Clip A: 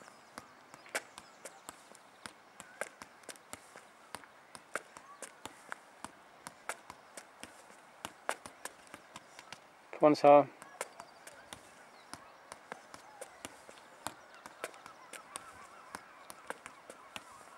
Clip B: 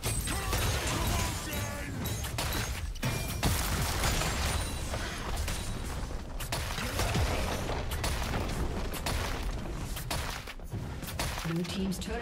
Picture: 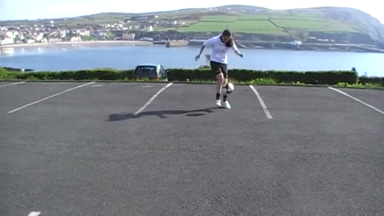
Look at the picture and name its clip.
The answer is A